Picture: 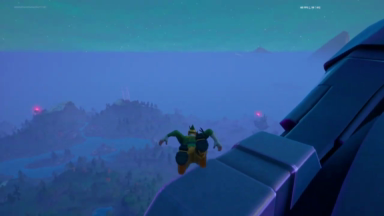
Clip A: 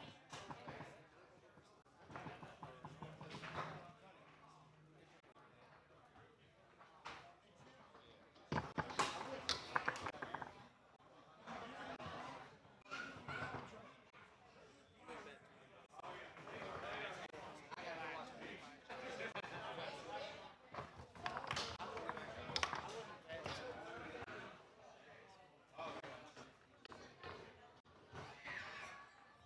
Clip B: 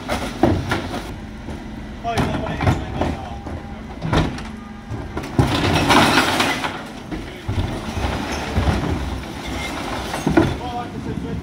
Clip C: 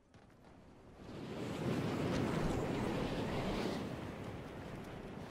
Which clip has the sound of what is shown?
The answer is C